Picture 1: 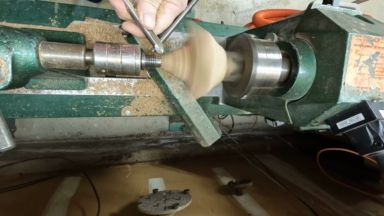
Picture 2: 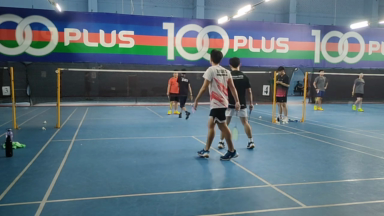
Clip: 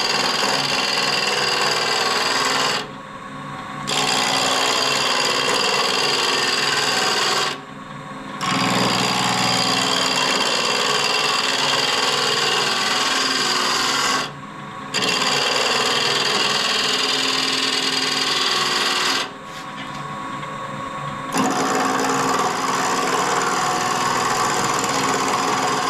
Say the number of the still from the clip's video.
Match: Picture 1